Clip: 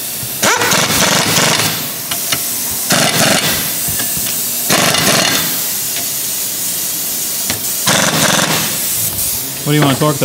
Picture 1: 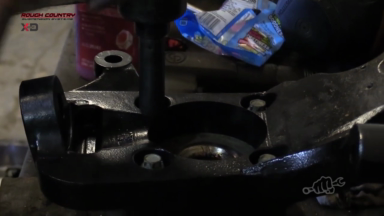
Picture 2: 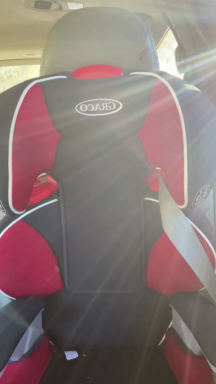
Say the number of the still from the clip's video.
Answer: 1